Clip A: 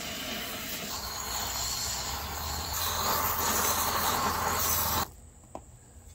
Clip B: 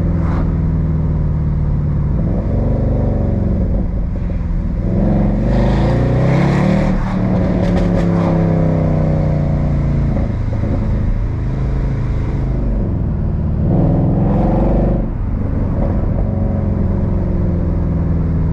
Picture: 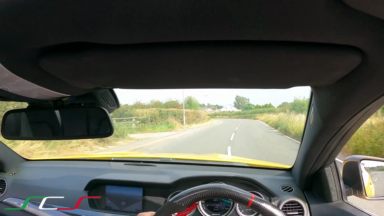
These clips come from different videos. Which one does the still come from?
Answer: B